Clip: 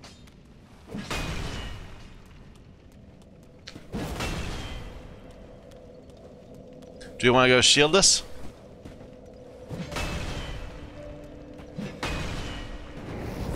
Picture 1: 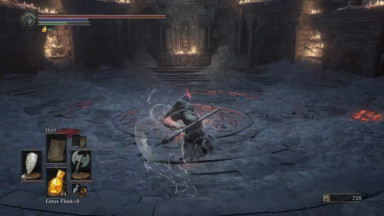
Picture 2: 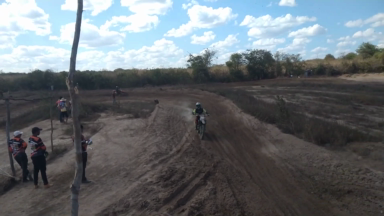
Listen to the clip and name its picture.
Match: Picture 1